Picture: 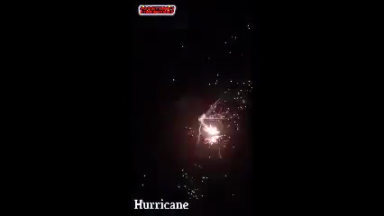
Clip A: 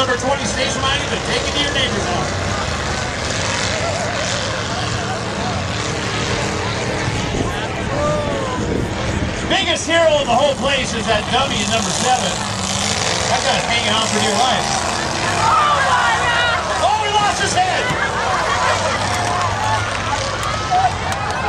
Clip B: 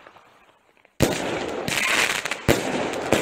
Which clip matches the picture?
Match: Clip B